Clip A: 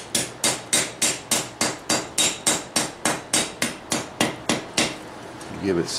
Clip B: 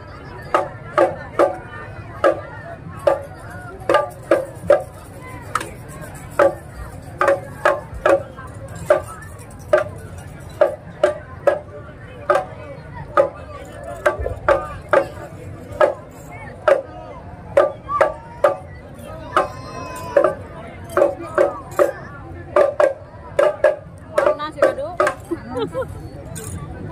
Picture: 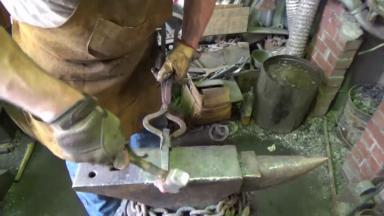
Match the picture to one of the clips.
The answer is A